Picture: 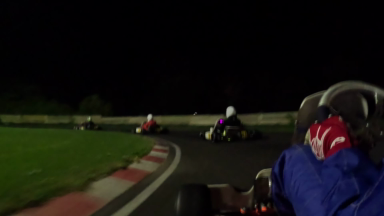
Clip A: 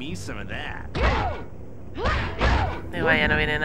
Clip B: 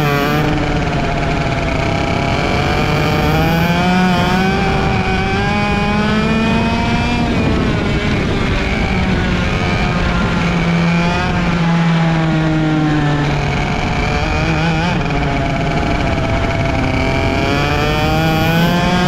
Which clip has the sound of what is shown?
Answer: B